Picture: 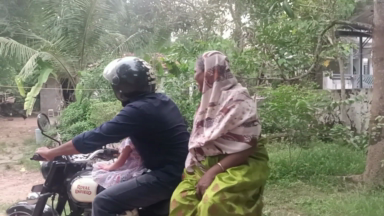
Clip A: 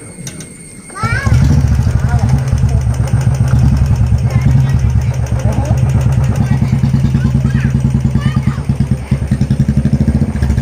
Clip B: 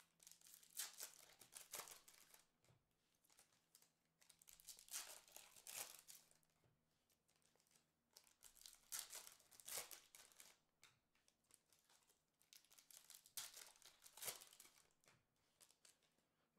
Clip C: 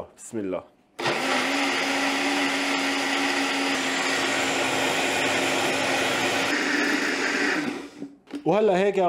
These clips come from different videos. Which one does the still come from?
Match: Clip A